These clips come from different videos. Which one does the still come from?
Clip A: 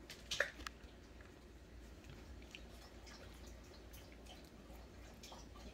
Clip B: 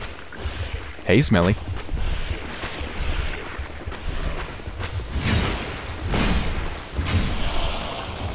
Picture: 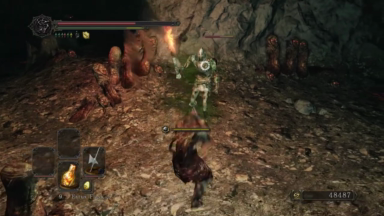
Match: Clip B